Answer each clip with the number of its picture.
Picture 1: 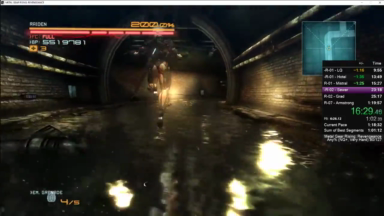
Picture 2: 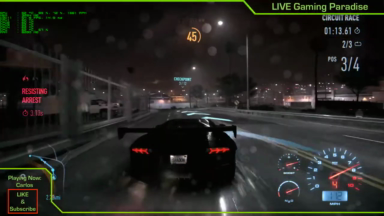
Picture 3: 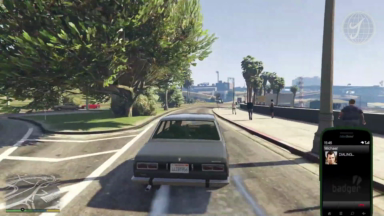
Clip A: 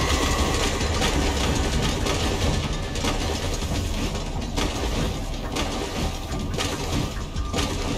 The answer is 1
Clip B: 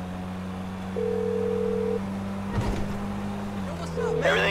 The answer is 3